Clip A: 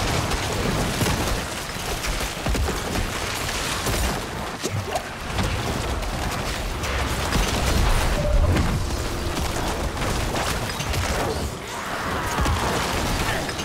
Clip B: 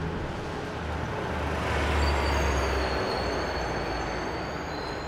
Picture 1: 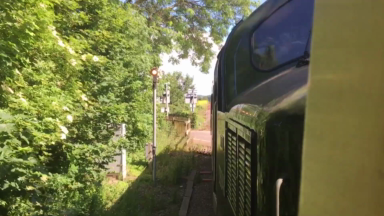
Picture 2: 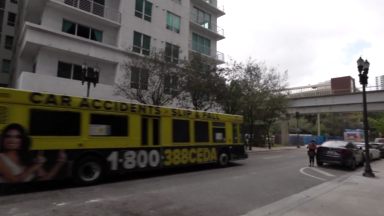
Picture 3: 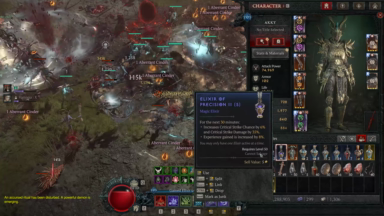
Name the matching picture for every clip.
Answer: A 3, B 2